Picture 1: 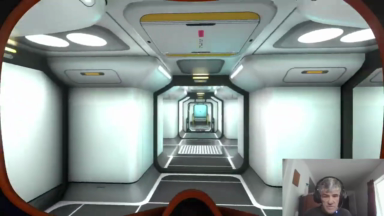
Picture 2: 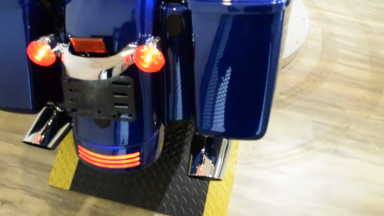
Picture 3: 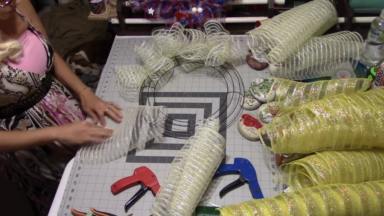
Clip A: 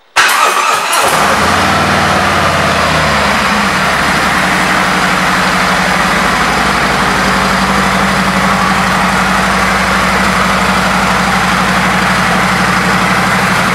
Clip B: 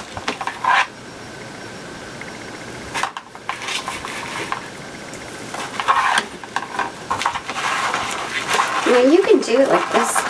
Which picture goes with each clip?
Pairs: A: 2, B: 3